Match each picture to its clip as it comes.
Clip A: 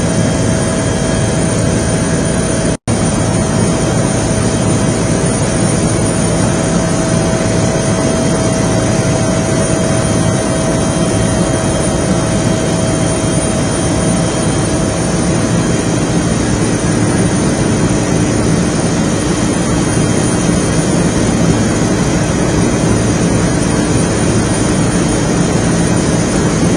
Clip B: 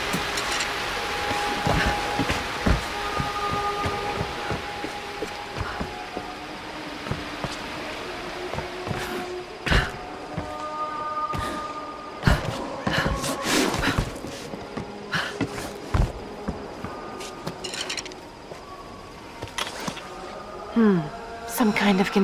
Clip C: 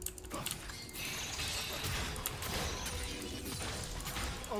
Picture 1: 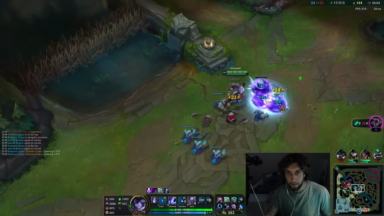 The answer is C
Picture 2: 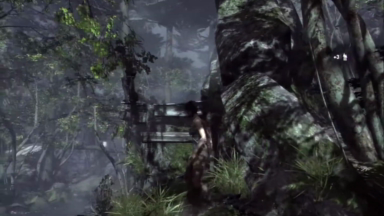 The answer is B